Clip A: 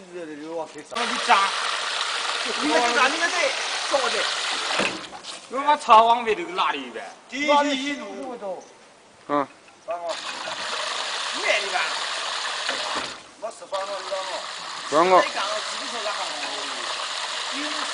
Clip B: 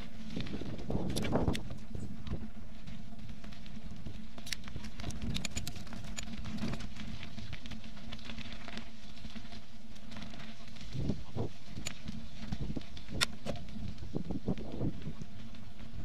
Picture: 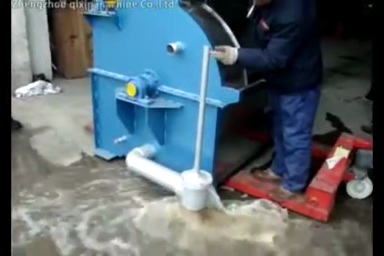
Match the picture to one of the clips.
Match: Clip A